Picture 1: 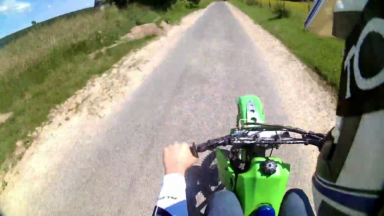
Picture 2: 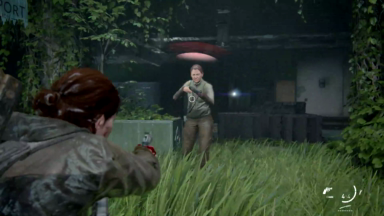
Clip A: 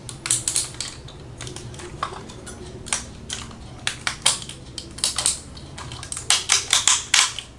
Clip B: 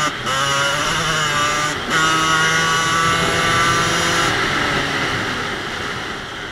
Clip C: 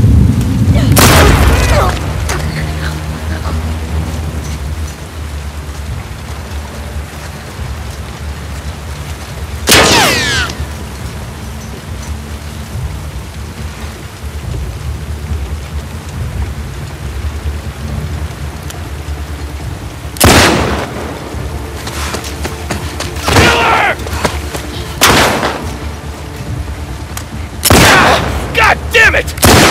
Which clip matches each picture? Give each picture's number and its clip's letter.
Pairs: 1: B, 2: C